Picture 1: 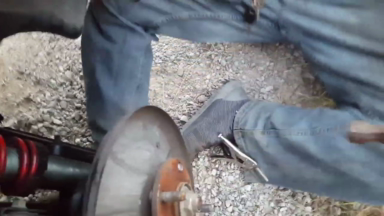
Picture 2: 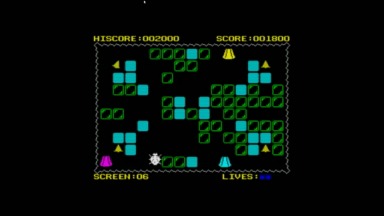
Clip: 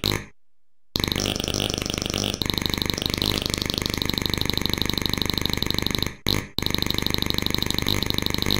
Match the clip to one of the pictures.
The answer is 2